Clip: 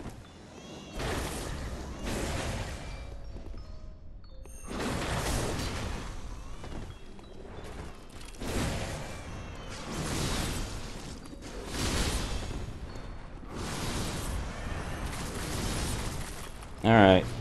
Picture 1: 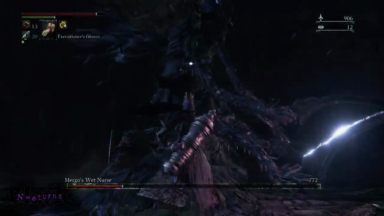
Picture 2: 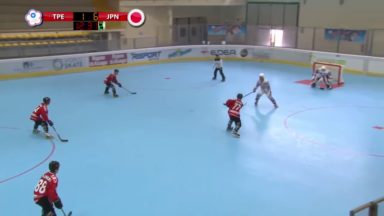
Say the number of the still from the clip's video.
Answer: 1